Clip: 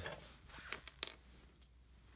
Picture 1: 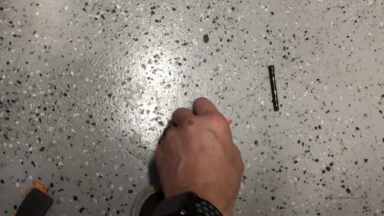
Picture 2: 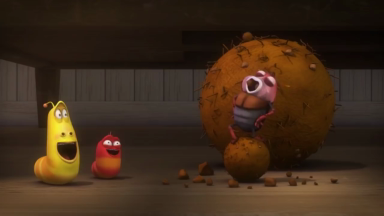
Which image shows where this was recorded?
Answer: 1